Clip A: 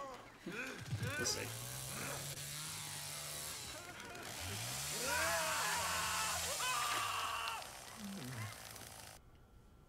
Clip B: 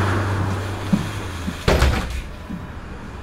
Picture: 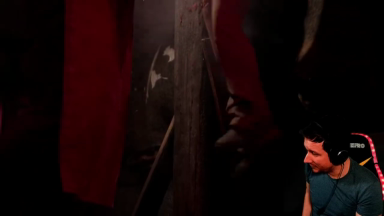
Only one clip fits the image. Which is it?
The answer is A